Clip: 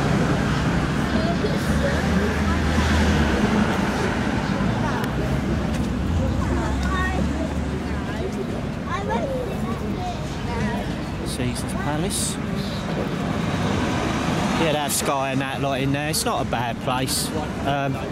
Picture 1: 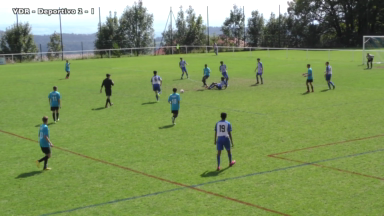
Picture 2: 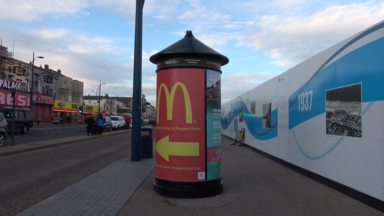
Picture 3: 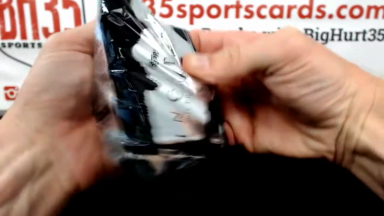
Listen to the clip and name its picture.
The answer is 2